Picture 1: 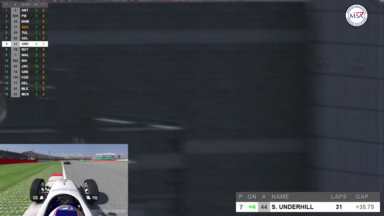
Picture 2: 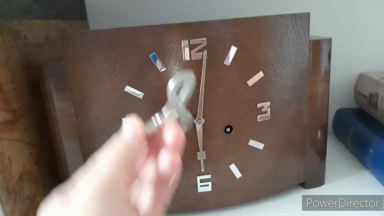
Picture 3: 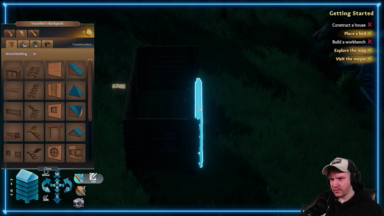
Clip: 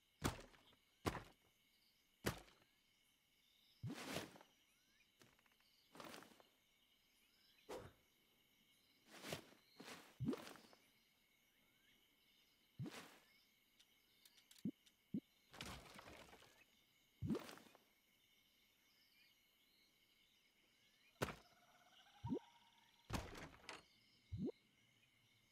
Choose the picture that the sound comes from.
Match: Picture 3